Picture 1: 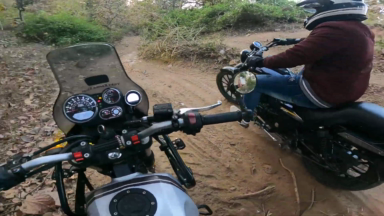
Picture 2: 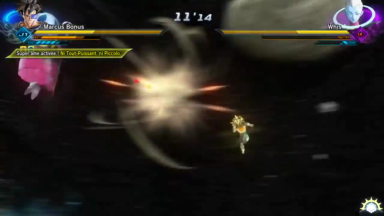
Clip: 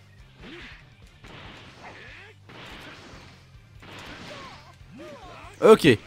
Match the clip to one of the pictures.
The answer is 2